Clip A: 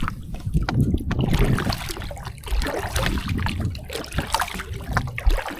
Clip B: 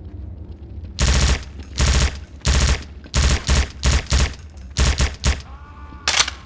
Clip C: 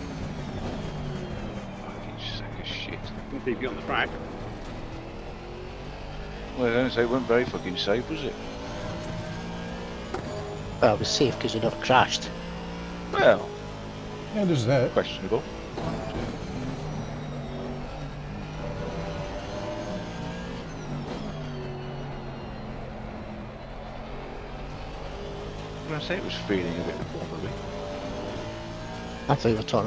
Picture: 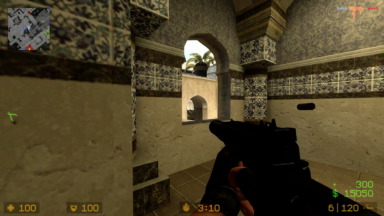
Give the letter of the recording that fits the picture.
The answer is B